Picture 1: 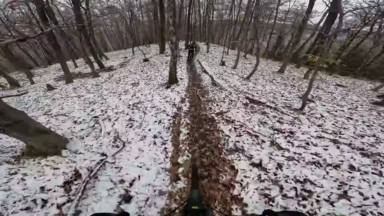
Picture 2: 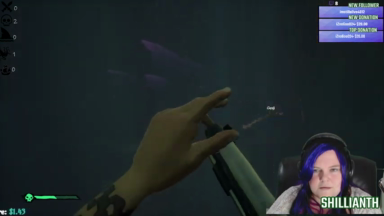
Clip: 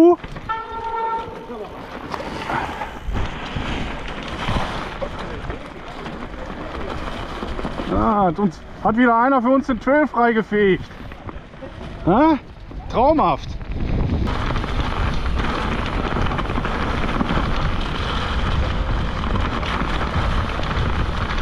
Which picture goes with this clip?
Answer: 1